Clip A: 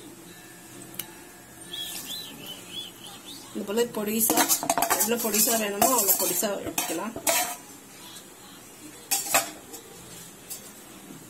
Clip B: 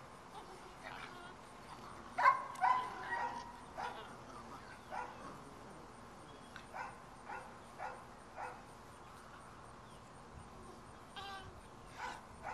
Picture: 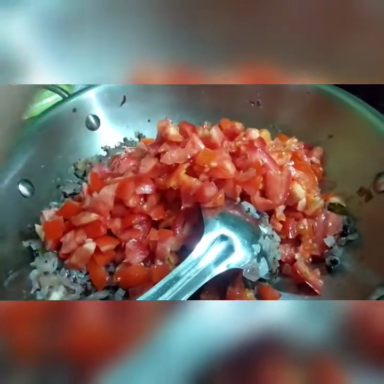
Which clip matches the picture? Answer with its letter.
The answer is A